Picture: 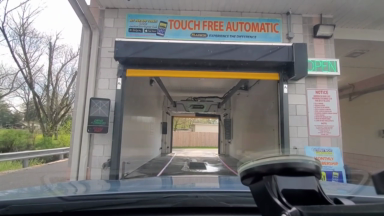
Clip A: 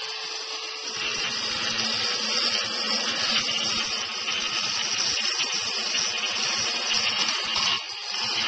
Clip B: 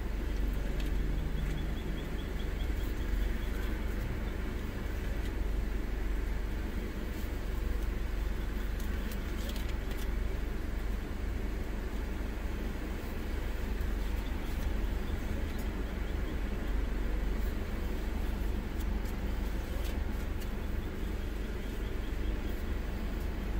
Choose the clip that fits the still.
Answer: B